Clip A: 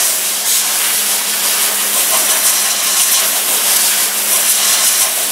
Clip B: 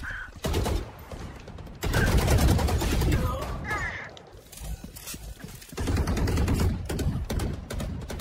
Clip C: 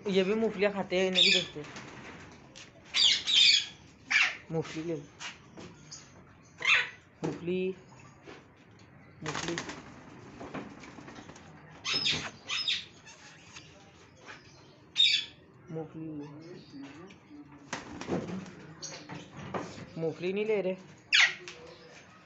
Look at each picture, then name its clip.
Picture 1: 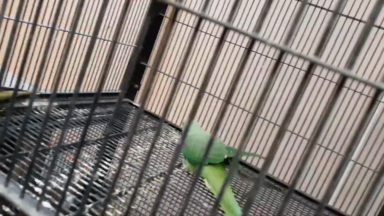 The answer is C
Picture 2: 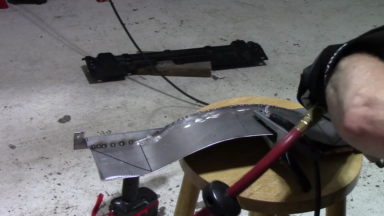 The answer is A